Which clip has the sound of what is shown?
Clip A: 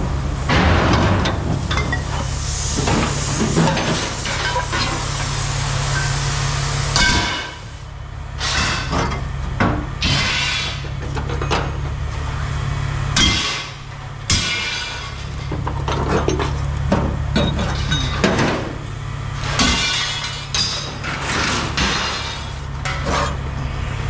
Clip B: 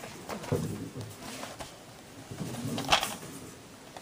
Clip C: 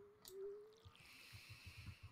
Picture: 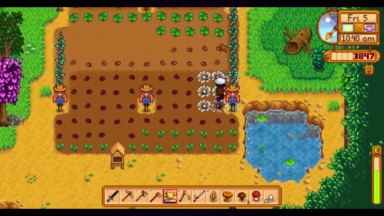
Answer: C